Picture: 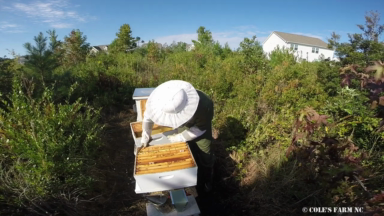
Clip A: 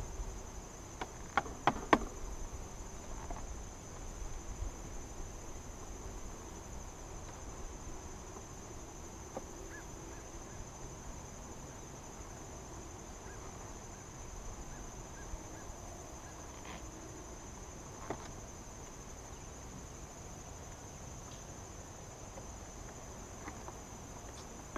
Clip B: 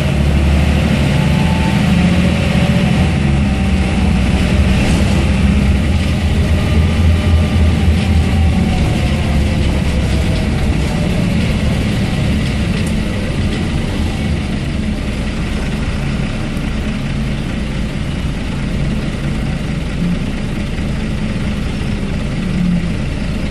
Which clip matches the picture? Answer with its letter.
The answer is A